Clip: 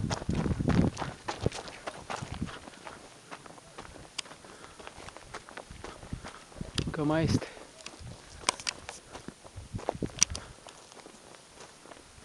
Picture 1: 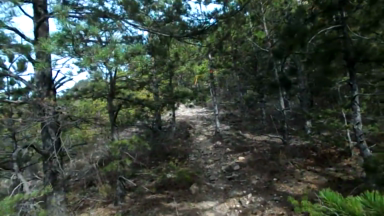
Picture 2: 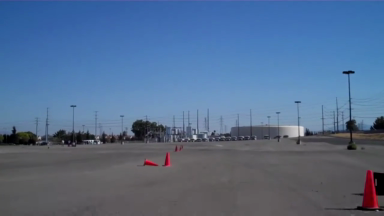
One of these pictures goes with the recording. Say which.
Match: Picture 1